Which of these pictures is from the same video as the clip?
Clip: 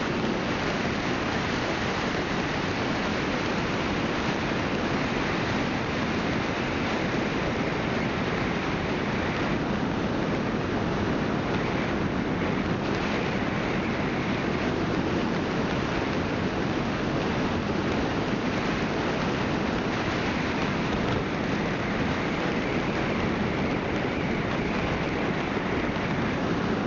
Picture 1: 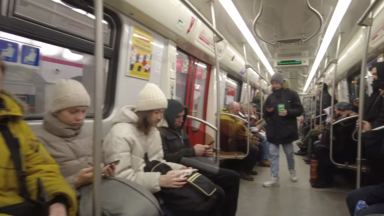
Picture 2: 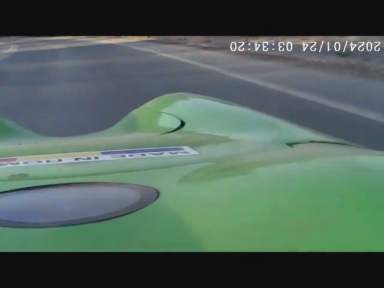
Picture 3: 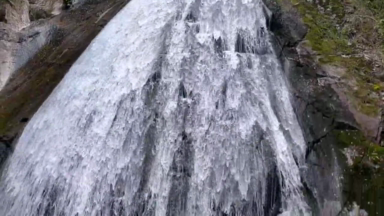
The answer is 2